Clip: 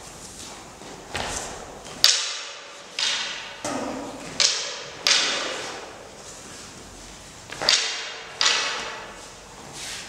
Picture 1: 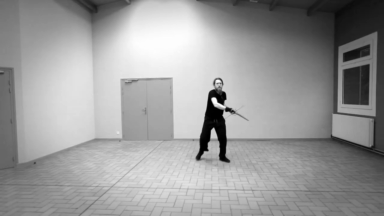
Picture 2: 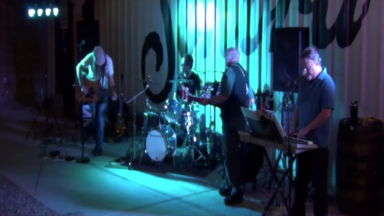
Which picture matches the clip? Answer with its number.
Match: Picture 1